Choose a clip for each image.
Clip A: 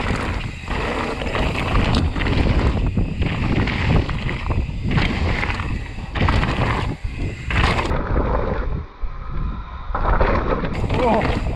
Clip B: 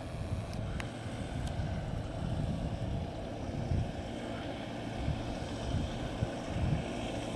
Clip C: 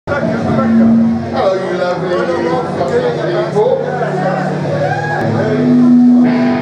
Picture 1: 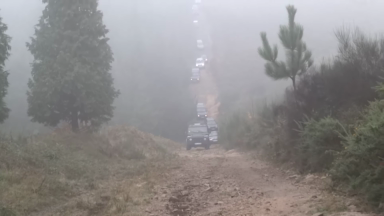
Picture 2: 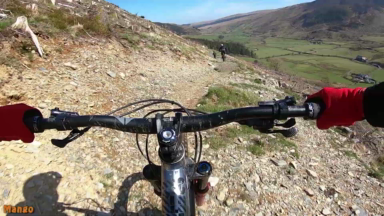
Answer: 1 B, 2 A